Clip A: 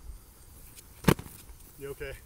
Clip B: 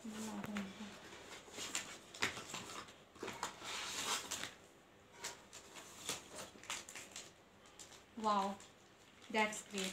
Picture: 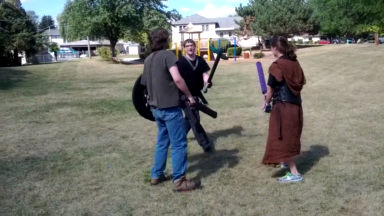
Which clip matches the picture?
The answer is A